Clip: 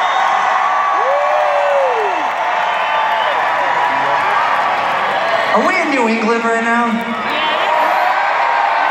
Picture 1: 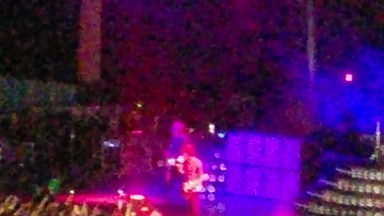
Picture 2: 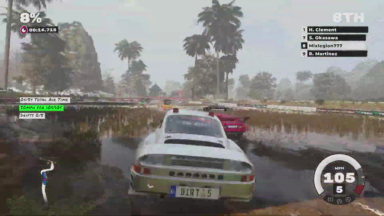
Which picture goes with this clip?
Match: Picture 1